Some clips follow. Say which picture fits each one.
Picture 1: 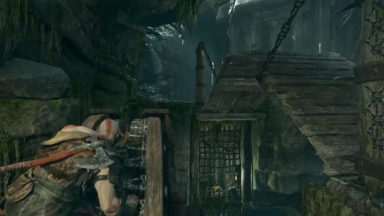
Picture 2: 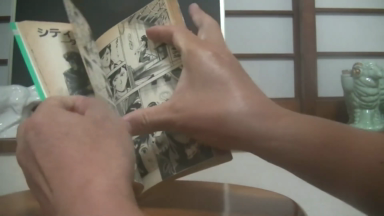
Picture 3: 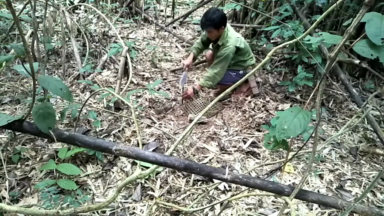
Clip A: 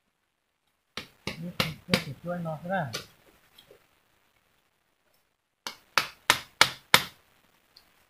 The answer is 3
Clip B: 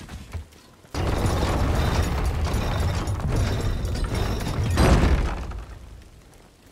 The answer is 1